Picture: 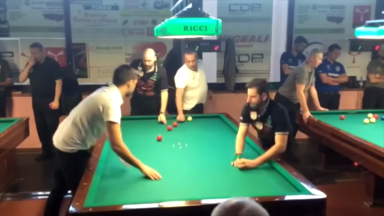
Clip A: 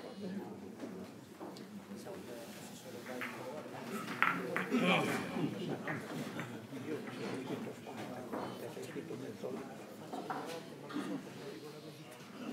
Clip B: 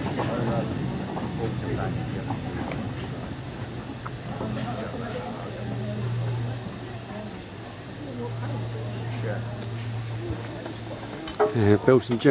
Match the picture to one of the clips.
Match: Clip A